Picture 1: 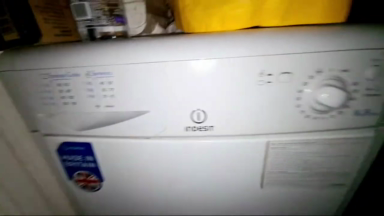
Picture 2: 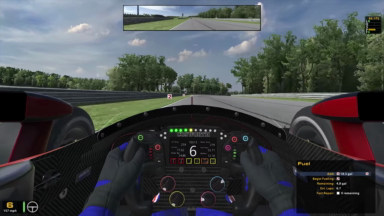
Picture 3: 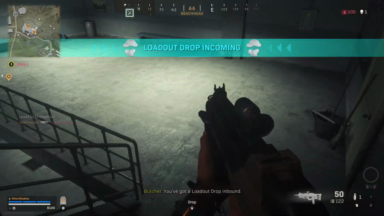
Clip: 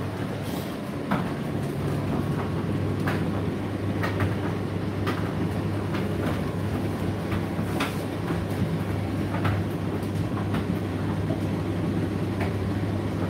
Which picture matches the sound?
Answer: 1